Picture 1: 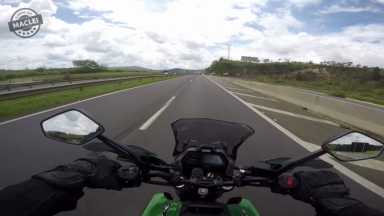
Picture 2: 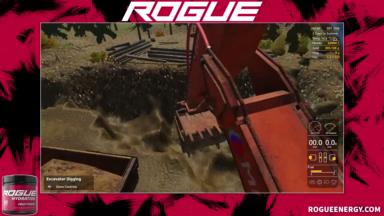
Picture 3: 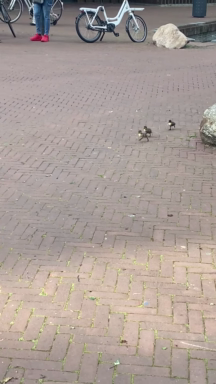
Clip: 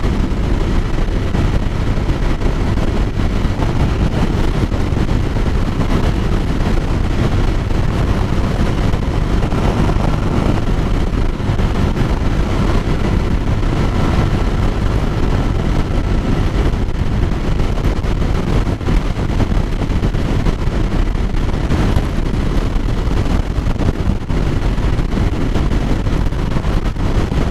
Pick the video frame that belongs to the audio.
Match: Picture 1